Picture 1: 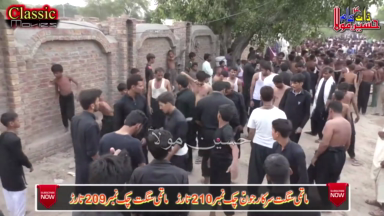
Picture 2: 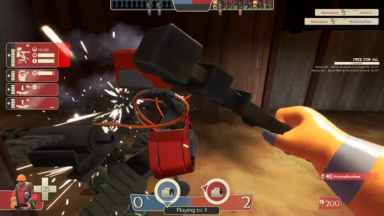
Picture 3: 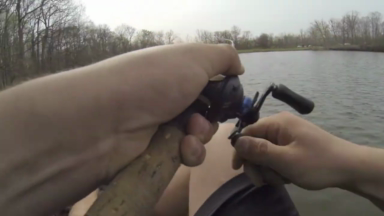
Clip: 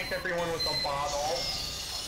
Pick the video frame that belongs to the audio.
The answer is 2